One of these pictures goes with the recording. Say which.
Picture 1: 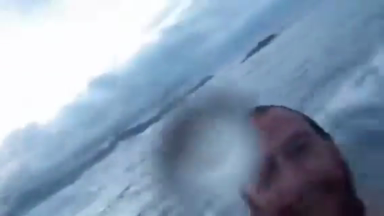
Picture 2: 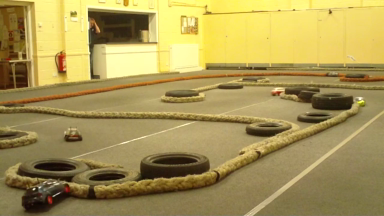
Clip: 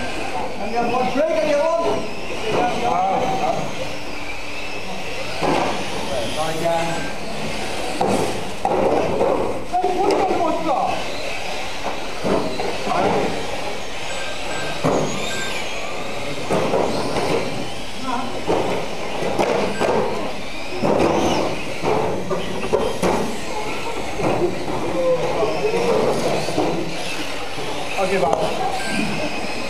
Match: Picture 2